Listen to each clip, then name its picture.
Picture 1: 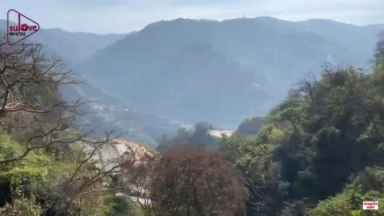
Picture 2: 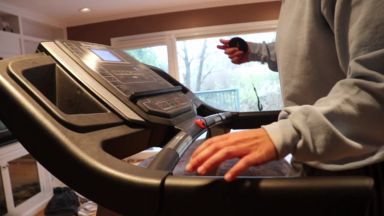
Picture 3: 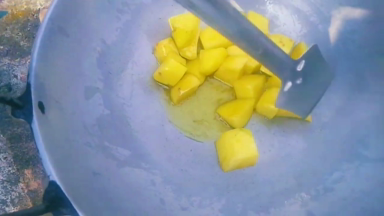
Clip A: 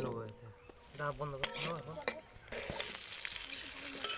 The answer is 3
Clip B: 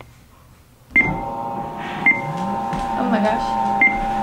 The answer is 2